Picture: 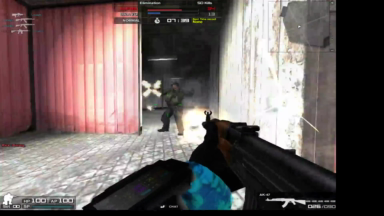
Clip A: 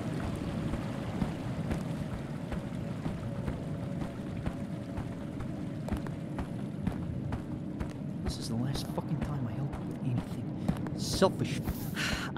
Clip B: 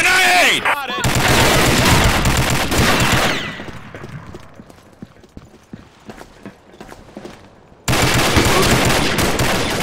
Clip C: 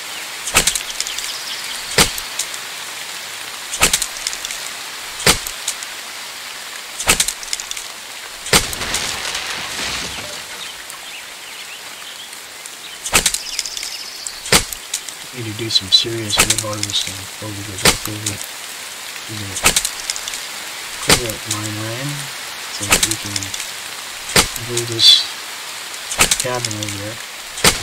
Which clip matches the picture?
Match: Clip B